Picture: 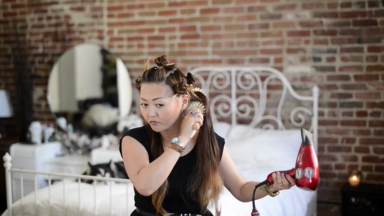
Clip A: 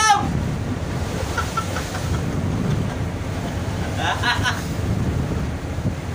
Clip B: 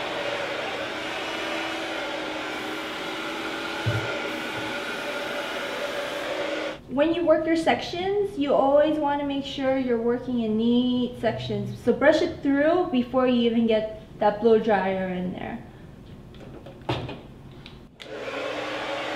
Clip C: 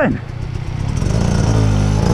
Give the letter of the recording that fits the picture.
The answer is B